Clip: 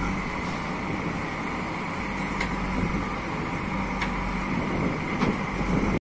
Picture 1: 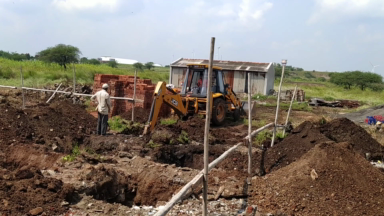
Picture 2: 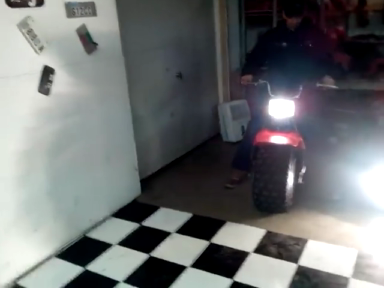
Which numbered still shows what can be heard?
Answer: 1